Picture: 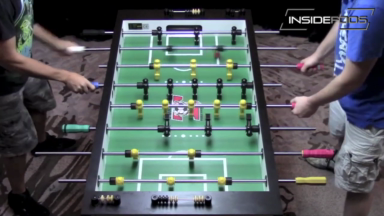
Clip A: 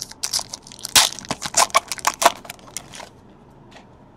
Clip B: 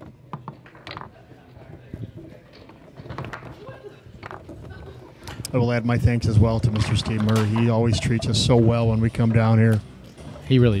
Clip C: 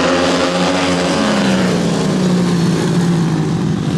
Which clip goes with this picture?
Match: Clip B